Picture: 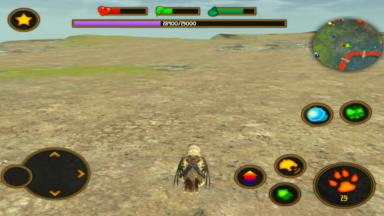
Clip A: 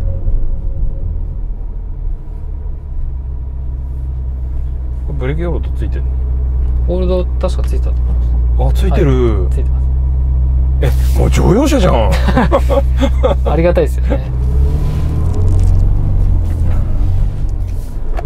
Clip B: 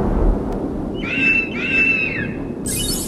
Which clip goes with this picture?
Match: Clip B